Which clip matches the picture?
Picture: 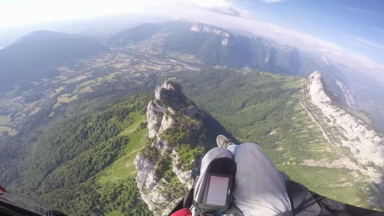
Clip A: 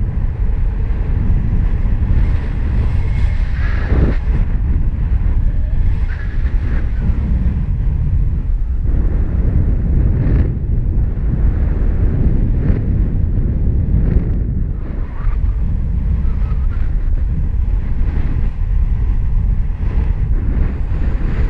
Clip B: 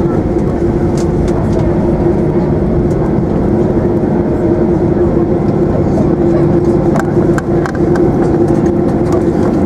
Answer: A